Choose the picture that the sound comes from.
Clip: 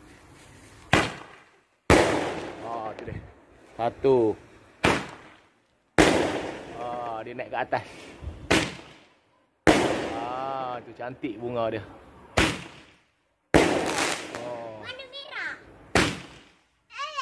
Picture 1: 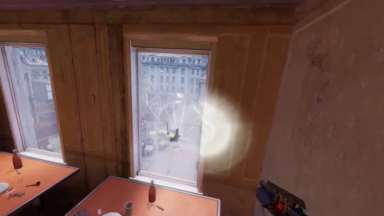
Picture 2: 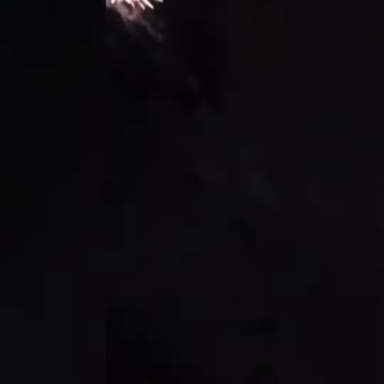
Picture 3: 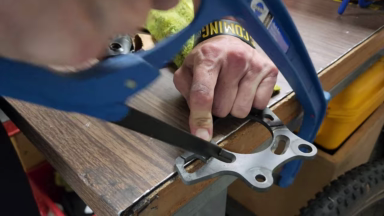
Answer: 2